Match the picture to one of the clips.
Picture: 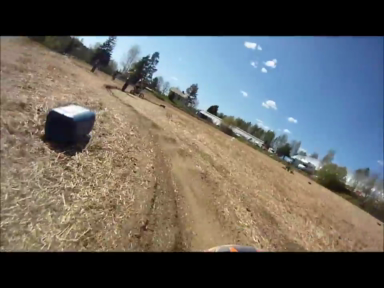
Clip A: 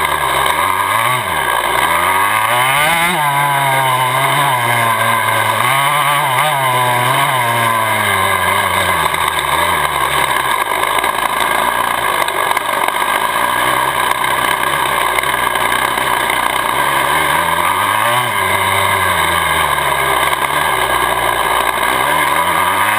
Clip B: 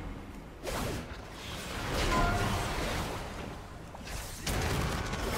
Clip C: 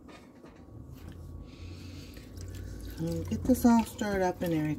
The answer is A